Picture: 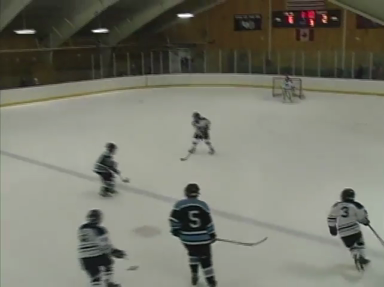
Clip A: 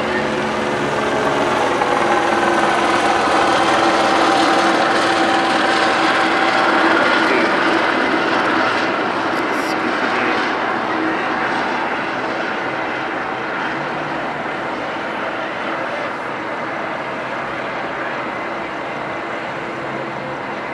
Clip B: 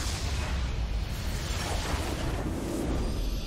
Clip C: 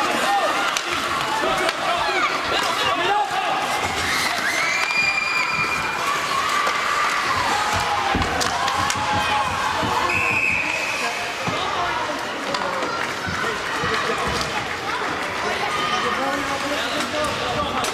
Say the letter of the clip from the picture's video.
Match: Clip C